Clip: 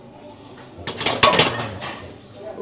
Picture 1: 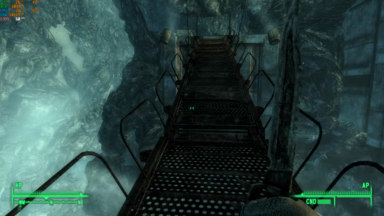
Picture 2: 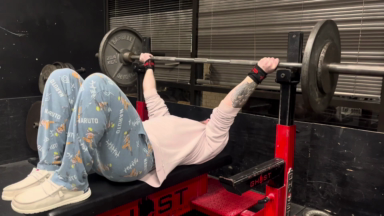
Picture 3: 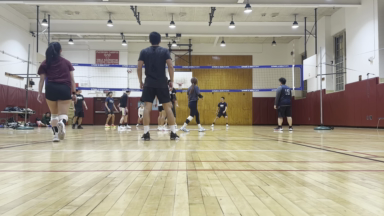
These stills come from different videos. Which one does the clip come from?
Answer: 2